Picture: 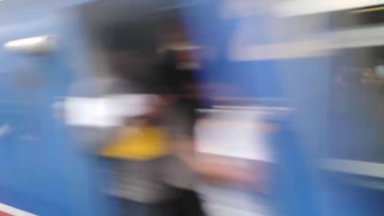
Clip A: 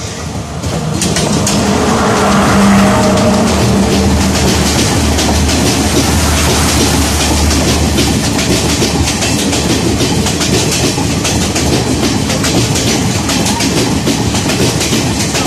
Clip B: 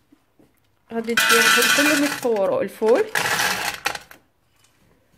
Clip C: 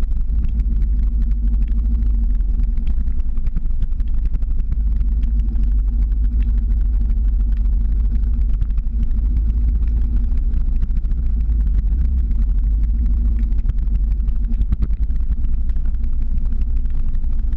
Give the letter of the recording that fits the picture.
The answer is A